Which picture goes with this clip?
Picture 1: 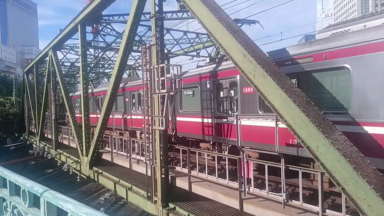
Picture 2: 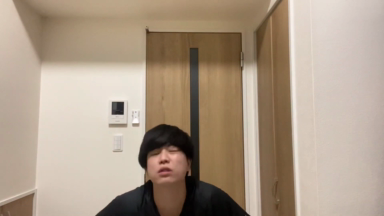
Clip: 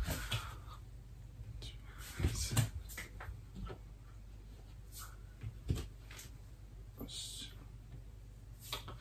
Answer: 2